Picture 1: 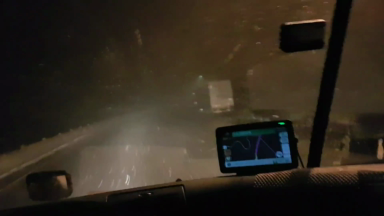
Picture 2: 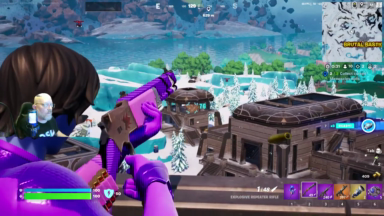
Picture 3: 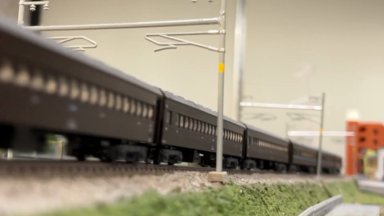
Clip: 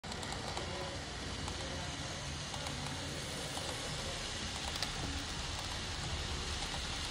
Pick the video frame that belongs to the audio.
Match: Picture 3